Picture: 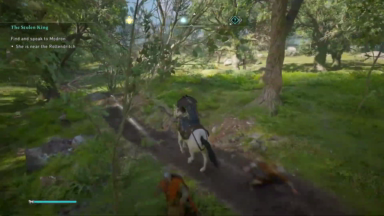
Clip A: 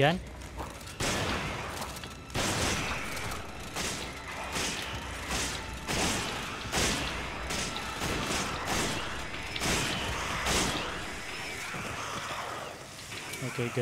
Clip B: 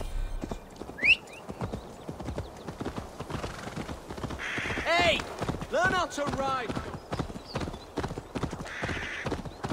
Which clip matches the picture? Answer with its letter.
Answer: B